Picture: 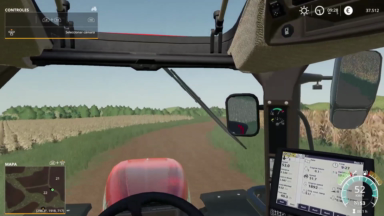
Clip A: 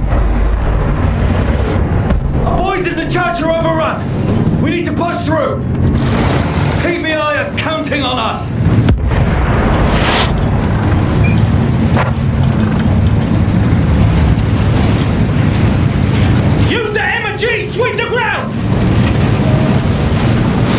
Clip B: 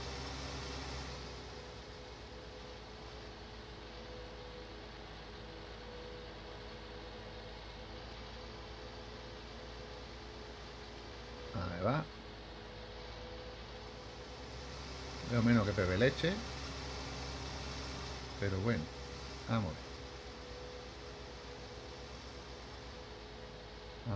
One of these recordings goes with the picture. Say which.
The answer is B